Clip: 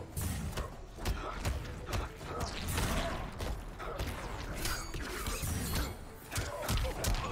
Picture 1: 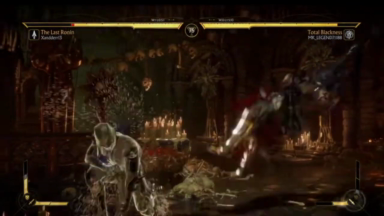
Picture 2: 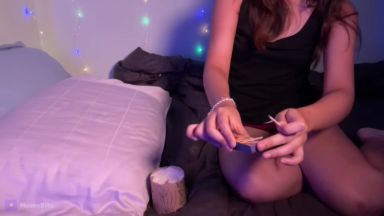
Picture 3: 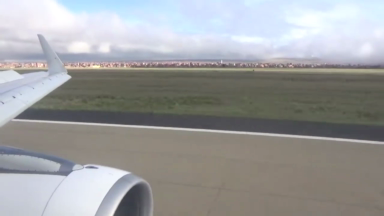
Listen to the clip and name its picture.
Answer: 1